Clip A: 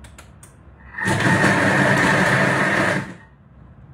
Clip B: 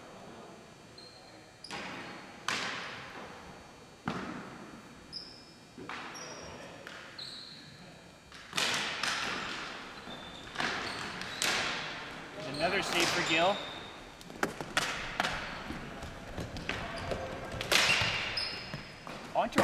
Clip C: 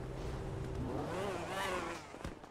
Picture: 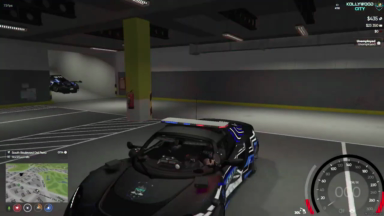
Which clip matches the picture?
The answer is C